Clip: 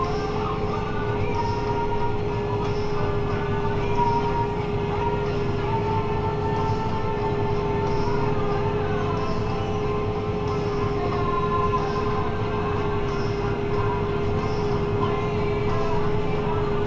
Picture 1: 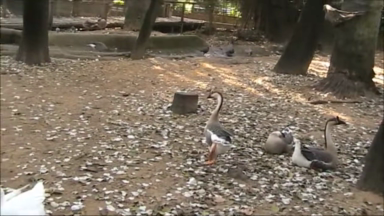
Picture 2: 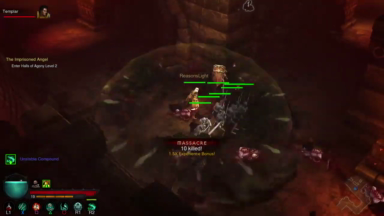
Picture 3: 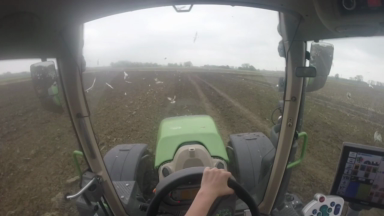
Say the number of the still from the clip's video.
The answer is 3